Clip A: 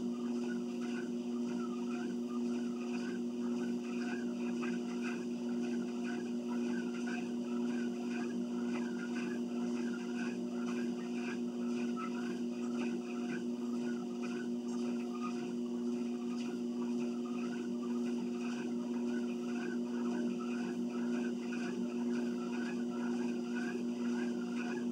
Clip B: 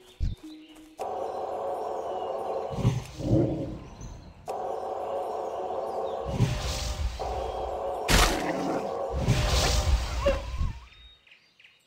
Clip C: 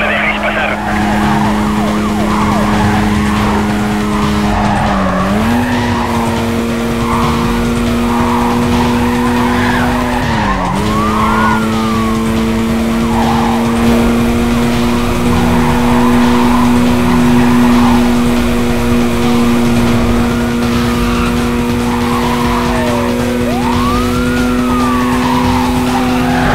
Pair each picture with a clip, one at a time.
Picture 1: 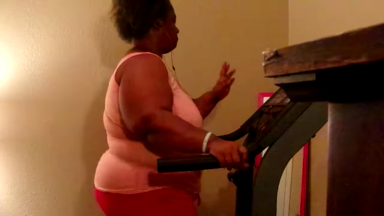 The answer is A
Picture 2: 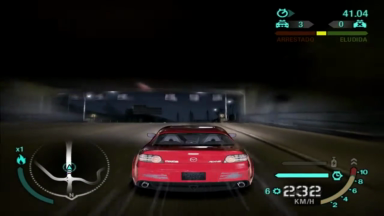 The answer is C